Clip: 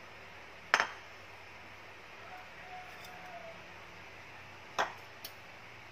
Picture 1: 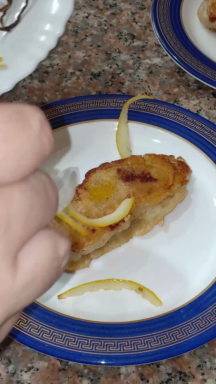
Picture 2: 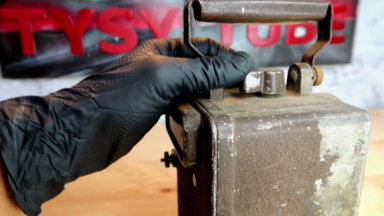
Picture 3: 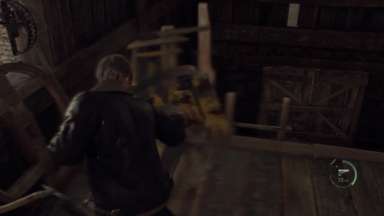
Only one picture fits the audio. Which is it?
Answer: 1